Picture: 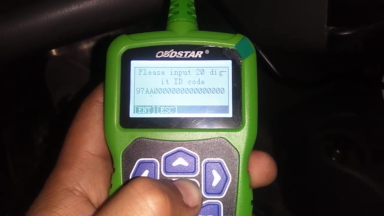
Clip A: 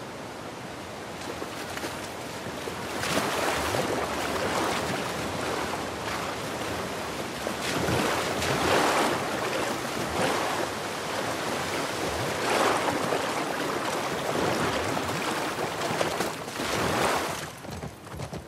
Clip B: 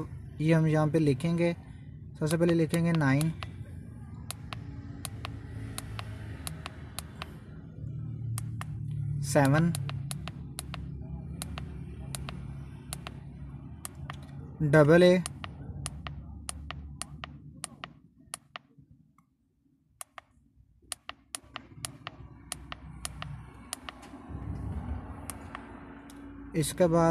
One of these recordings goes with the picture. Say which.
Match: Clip B